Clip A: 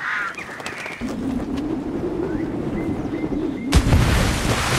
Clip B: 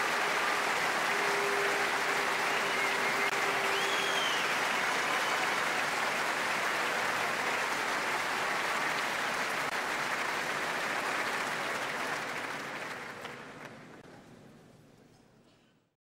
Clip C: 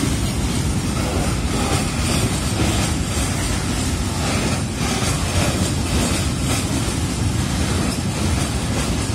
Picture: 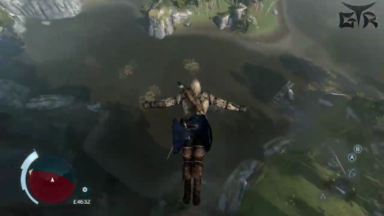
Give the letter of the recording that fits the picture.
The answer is A